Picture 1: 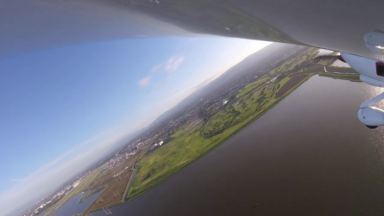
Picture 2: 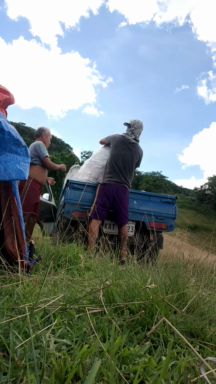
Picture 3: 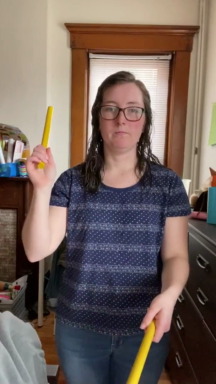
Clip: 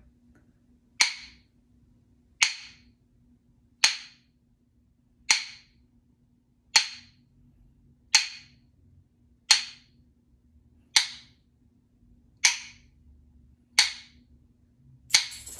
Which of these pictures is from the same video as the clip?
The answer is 3